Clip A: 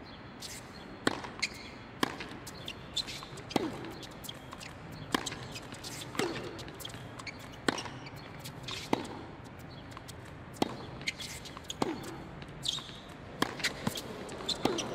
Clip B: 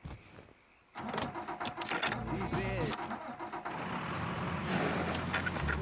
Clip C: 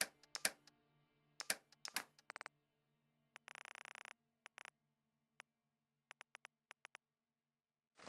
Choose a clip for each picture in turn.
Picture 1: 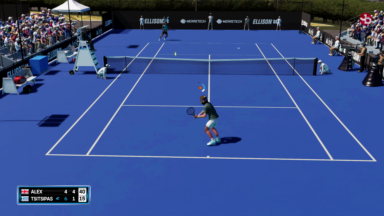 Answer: A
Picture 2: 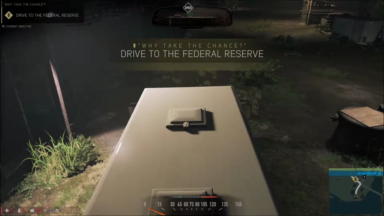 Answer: B